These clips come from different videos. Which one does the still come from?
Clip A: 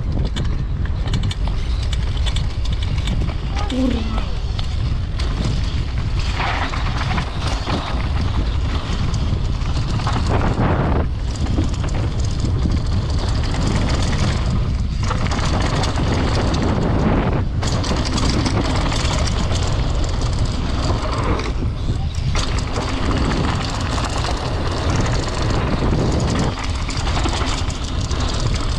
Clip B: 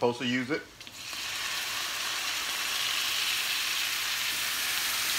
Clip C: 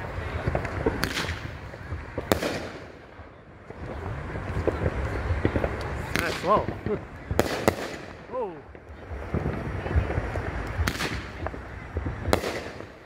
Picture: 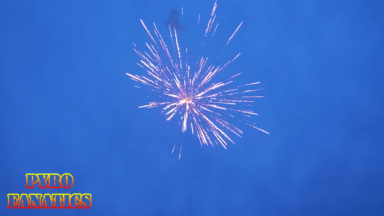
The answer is C